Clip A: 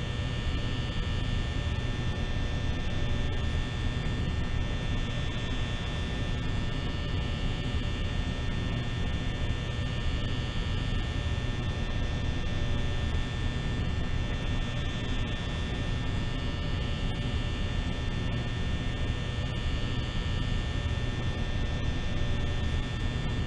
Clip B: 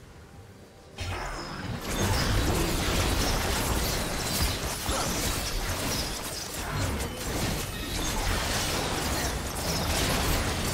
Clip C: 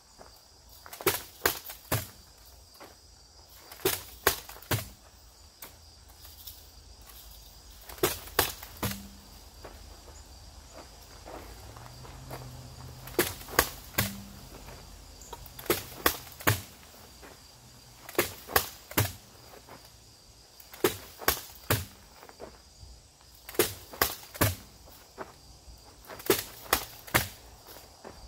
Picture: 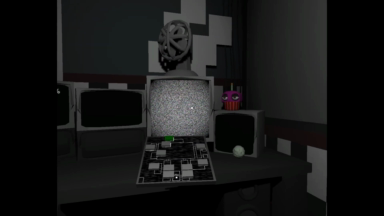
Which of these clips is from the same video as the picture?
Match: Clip A